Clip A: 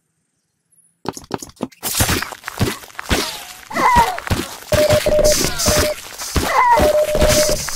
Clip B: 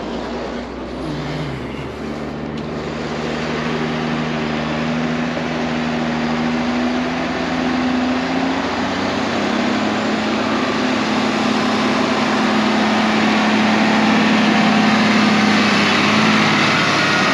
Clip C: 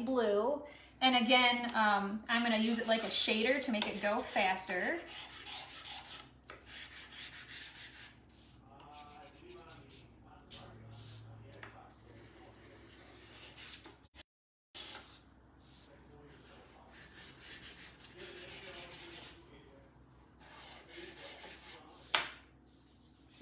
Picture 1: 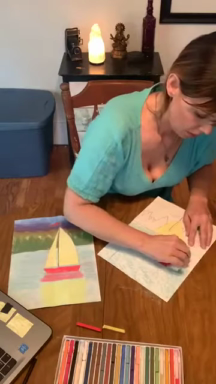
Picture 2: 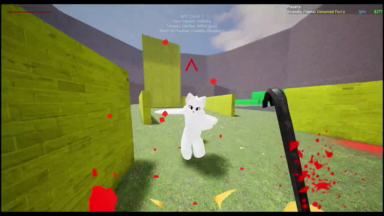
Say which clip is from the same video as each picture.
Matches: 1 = C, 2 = A